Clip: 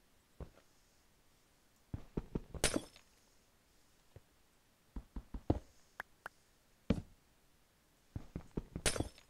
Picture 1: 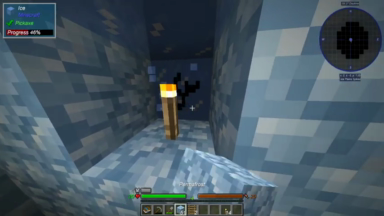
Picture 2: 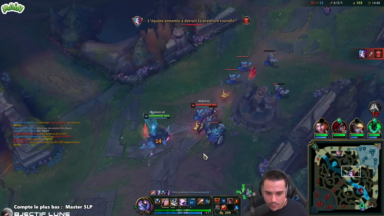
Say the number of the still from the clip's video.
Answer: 1